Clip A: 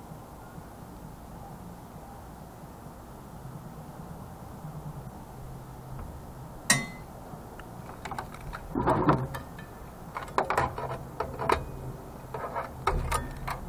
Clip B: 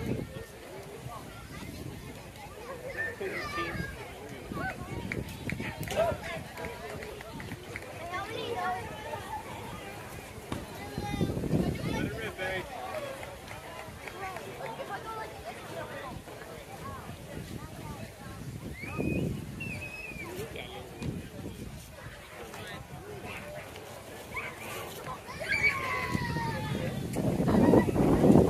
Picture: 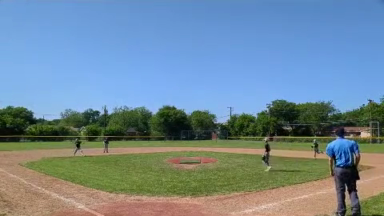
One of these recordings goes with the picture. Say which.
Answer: B